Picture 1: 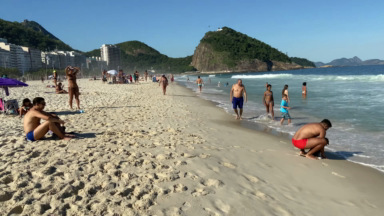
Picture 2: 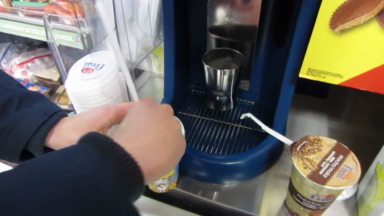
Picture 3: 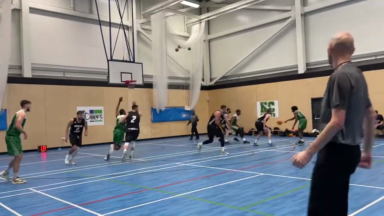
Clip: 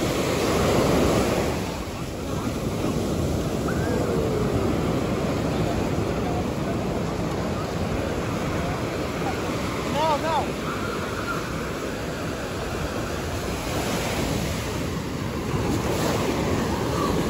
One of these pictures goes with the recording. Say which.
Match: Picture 1